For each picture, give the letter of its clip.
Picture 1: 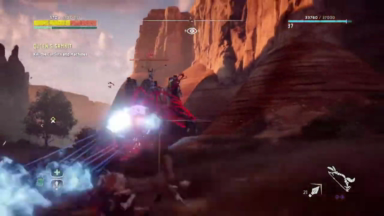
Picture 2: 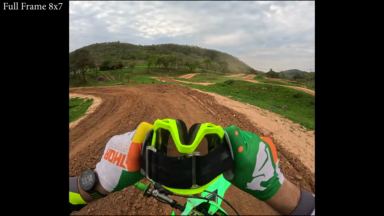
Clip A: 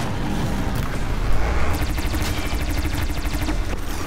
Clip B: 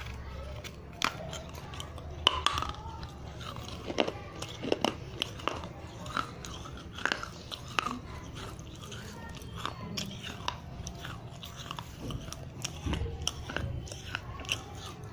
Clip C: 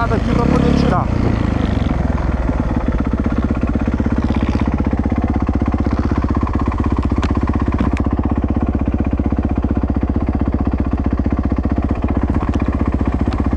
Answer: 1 A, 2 C